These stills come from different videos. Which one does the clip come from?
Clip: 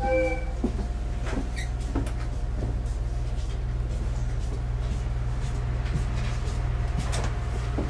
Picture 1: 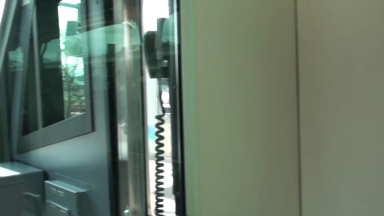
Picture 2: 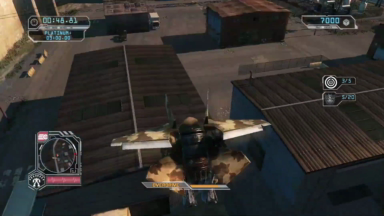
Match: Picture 1